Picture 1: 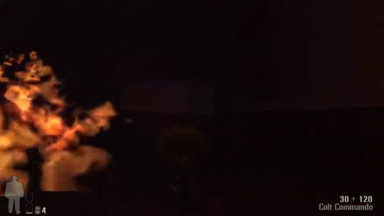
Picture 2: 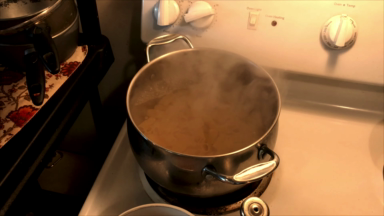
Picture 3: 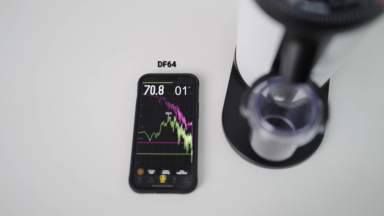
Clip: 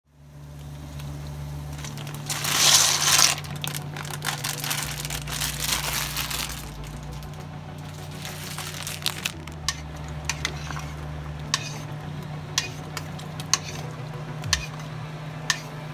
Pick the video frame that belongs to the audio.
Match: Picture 2